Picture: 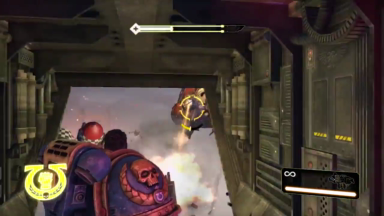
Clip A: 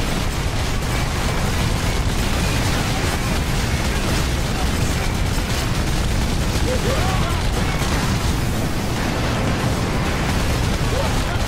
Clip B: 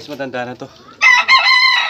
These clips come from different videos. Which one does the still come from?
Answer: A